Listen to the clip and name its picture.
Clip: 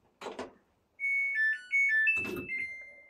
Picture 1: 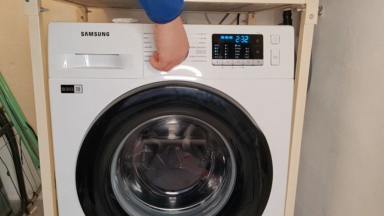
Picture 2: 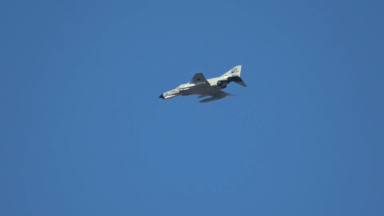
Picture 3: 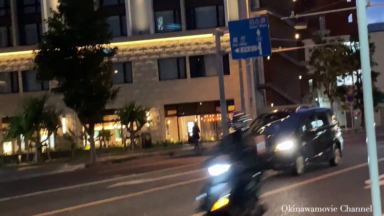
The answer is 1